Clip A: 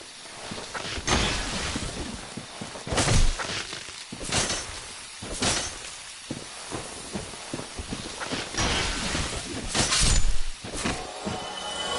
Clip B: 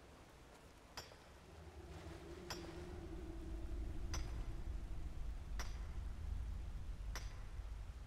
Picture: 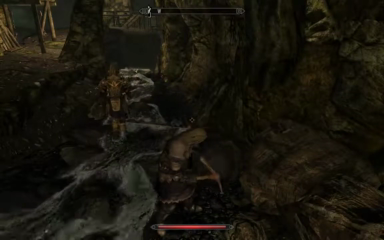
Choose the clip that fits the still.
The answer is B